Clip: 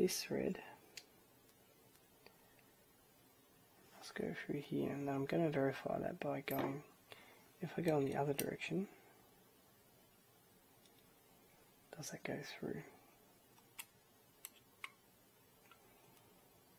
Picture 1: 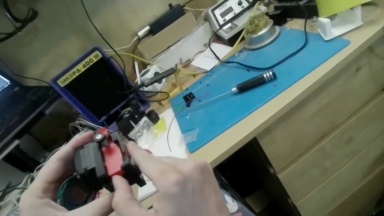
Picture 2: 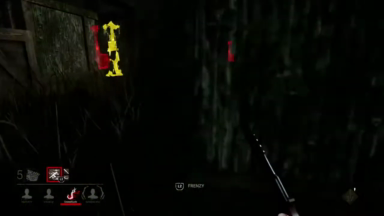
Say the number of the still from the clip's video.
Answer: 1